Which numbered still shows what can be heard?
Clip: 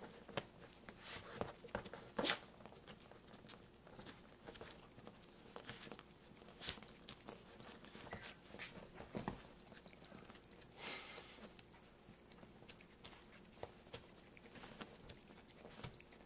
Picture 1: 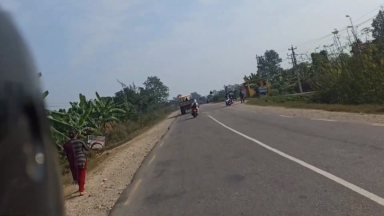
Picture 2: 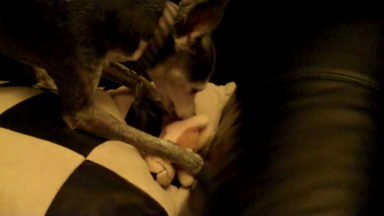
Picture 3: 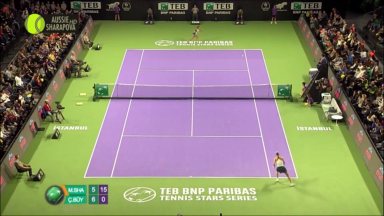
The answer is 2